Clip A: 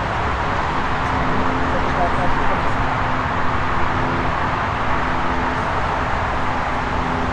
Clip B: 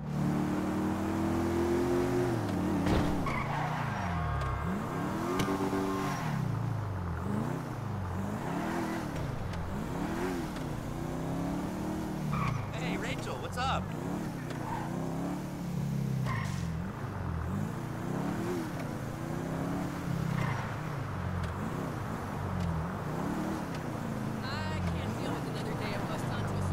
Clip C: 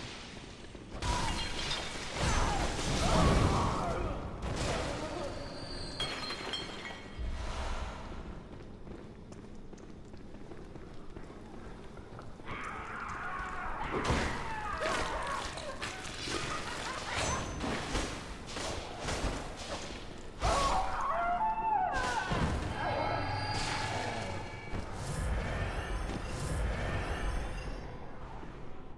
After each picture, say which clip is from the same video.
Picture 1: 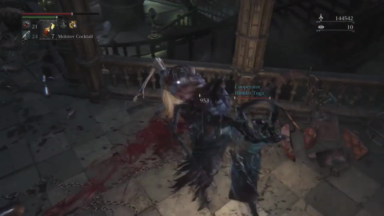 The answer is C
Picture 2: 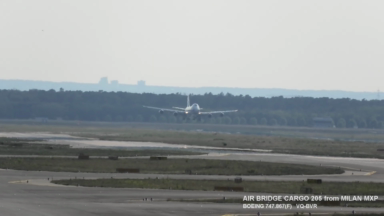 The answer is A